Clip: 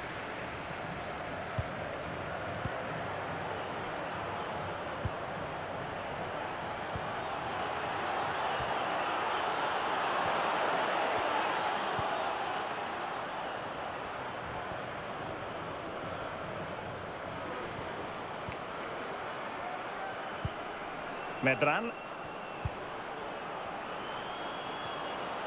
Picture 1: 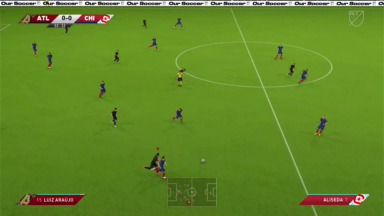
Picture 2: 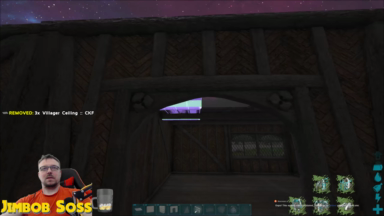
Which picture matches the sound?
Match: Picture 1